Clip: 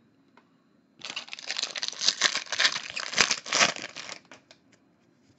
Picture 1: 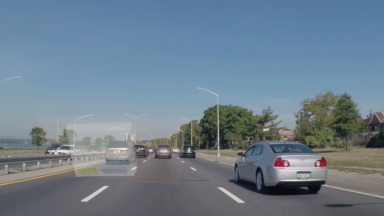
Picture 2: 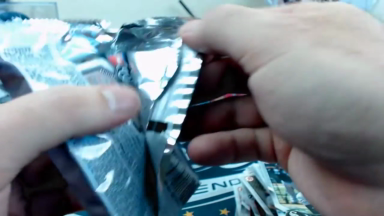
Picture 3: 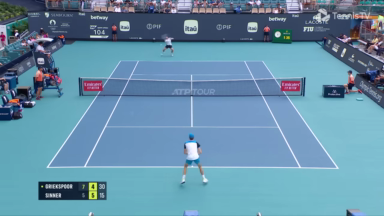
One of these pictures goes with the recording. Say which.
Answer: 2